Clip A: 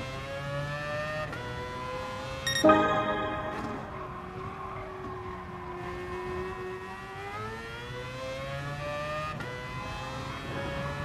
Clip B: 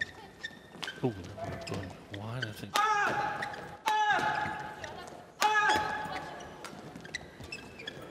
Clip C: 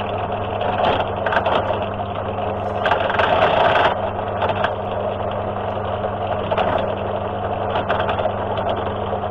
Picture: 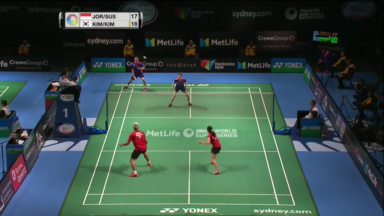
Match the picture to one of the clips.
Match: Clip B